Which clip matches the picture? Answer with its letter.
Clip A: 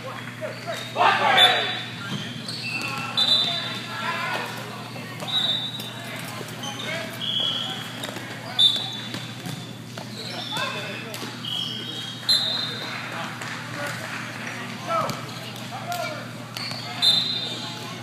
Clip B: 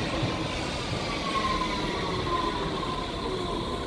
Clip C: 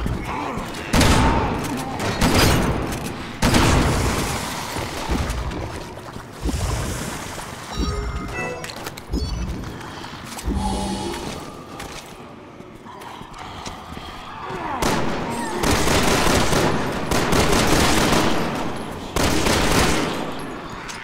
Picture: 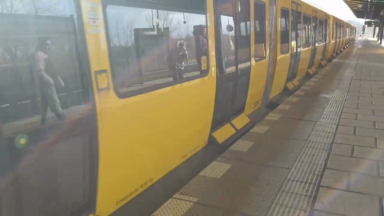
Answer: B